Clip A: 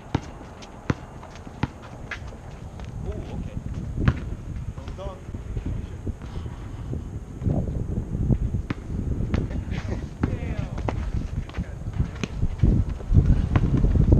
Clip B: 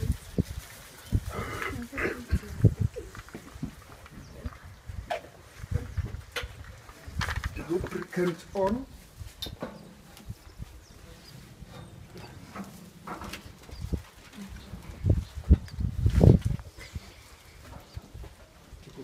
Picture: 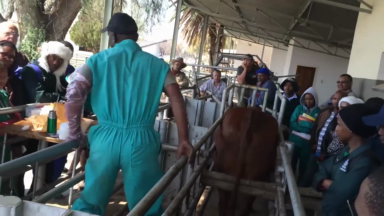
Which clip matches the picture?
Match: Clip B